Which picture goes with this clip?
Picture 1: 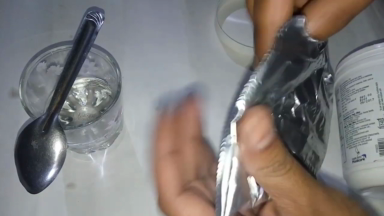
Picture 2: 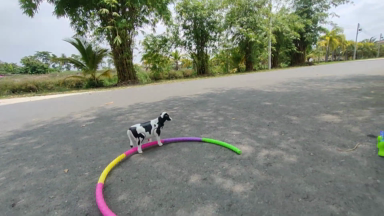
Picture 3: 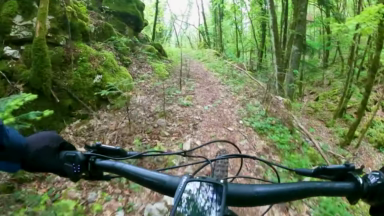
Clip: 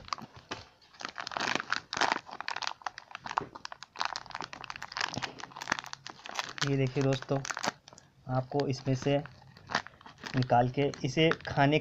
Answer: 1